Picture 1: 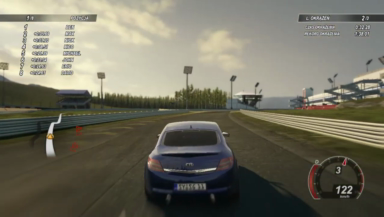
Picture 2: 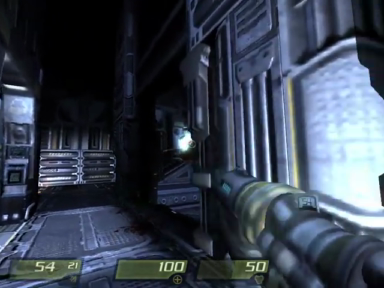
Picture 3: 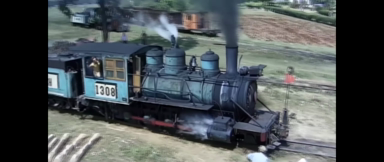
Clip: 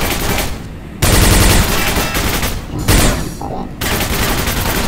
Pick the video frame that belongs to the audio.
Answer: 2